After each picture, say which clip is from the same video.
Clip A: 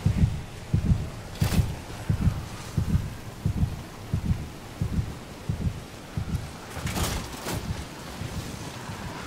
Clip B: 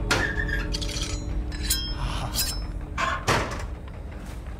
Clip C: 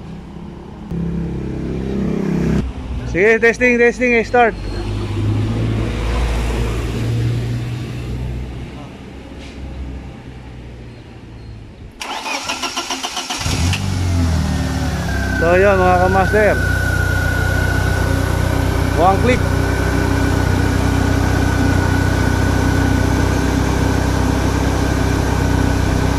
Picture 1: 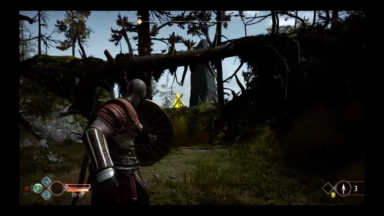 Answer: A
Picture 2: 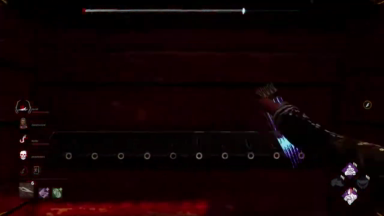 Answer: B